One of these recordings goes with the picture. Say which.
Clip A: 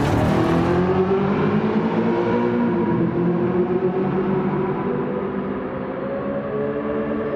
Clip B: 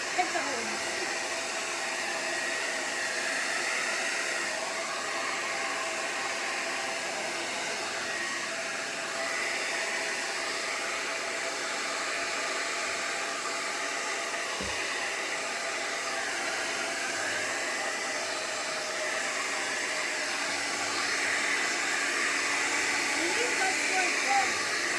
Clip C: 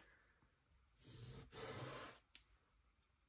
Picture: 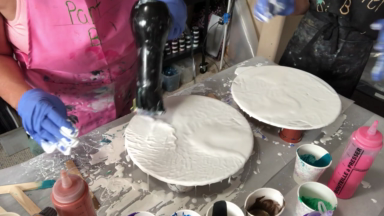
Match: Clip B